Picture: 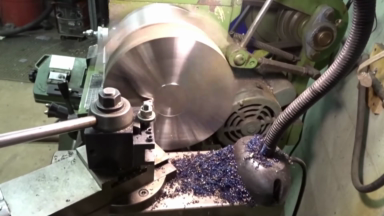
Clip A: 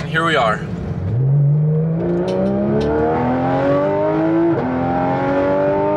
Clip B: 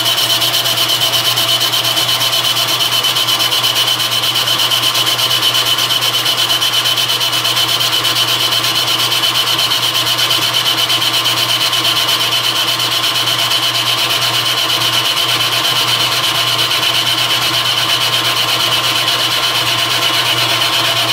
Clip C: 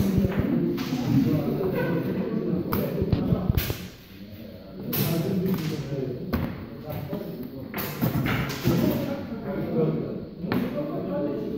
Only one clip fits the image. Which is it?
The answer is B